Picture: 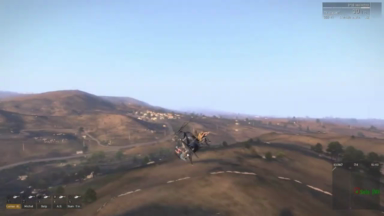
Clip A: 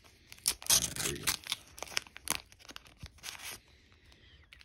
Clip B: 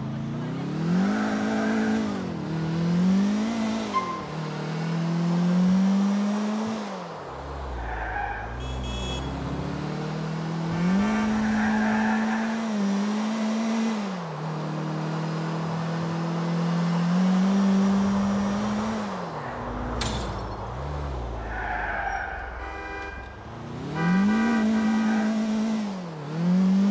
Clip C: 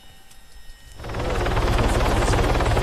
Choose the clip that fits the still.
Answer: C